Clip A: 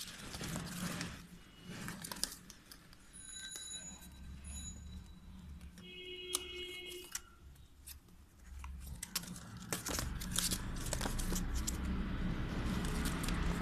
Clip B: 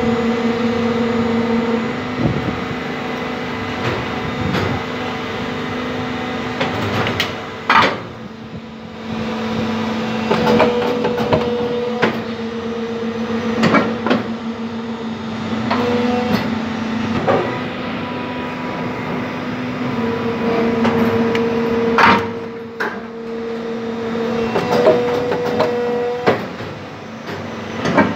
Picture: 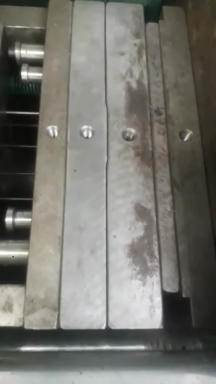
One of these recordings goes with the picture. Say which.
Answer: B